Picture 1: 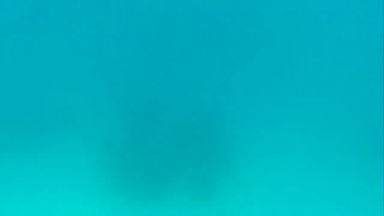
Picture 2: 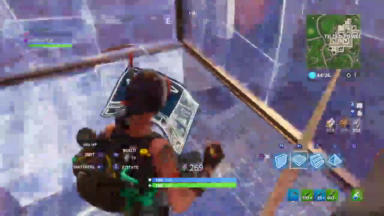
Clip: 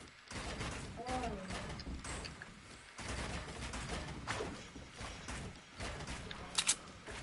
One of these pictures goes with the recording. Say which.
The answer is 2